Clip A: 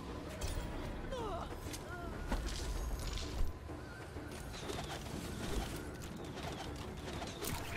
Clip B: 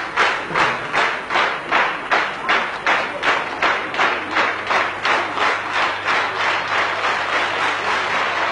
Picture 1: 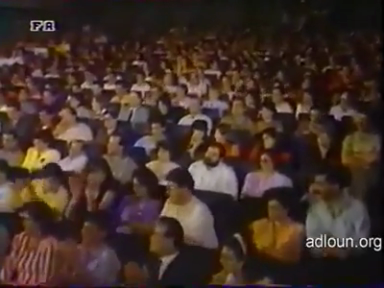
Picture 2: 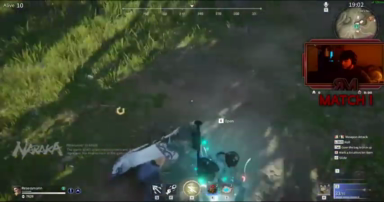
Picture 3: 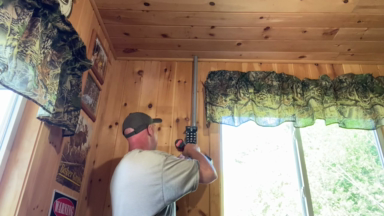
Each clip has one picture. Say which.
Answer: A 2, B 1